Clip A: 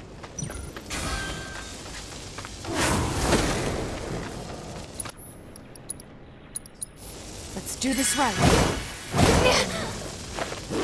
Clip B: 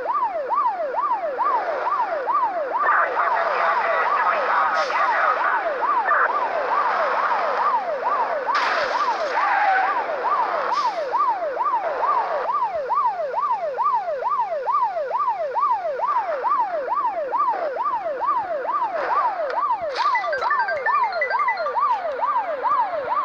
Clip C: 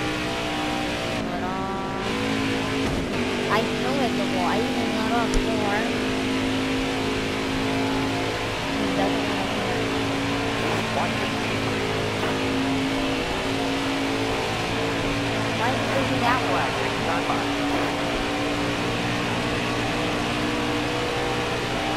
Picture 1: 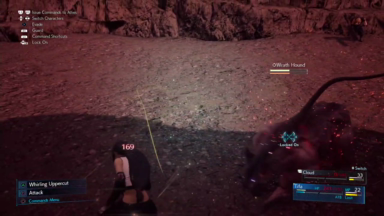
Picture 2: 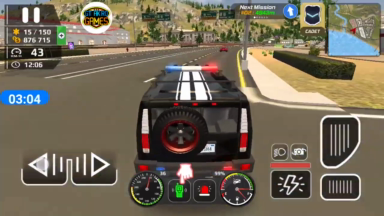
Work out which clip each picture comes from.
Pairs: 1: A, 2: B